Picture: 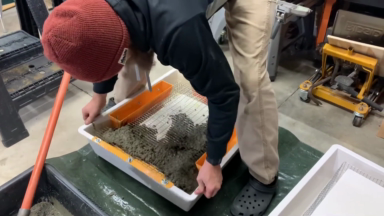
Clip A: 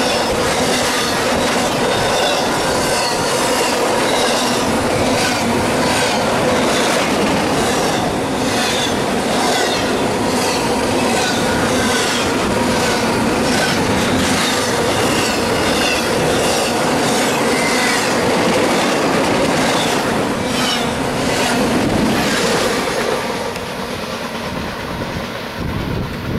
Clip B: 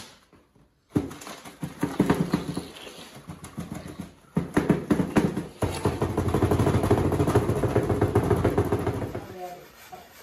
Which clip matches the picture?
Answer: B